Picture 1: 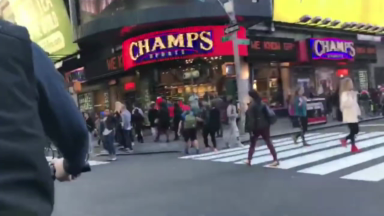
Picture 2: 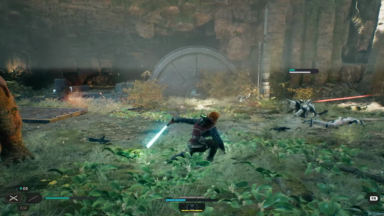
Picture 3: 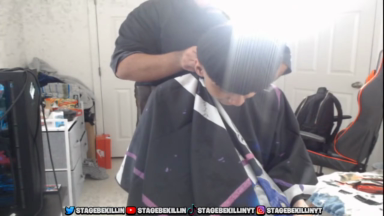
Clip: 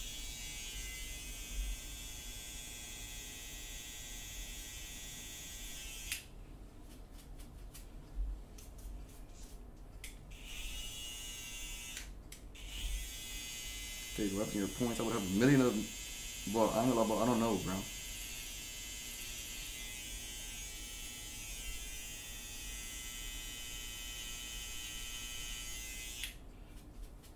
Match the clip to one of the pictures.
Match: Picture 3